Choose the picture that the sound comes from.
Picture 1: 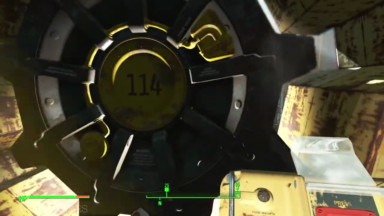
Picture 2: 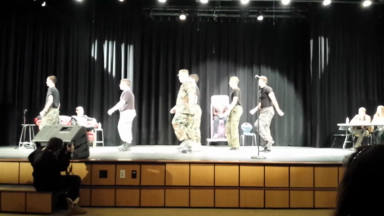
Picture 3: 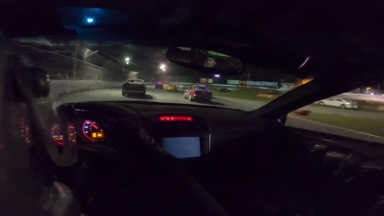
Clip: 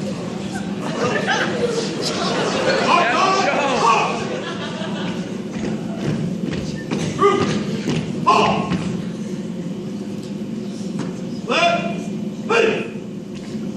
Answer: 2